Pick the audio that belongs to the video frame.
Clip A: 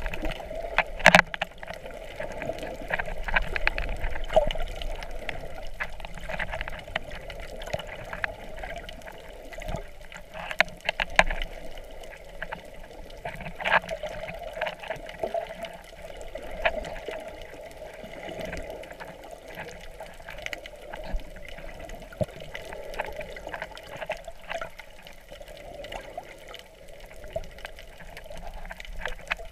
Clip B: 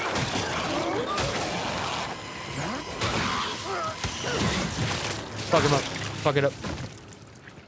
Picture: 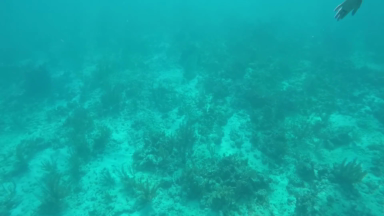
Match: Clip A